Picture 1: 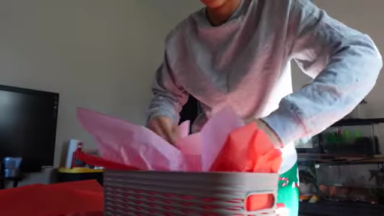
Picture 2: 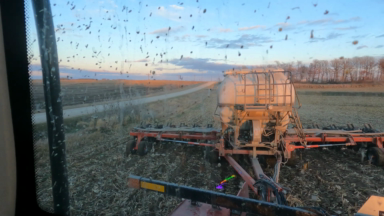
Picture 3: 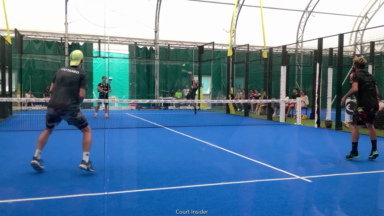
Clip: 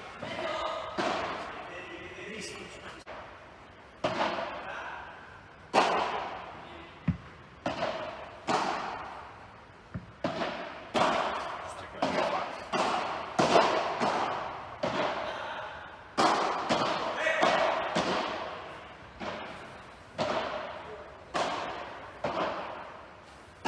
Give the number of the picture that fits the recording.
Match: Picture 3